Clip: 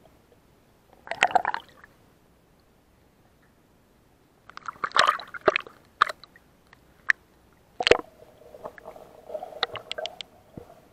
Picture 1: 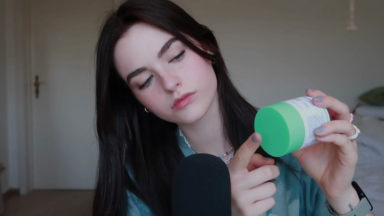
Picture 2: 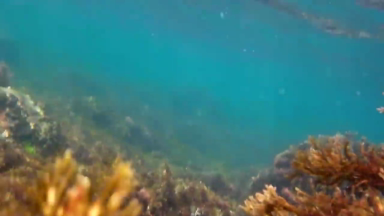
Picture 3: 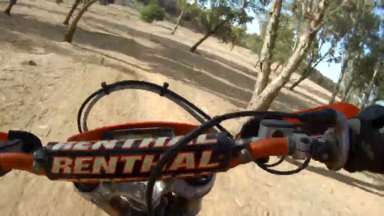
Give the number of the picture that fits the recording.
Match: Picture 2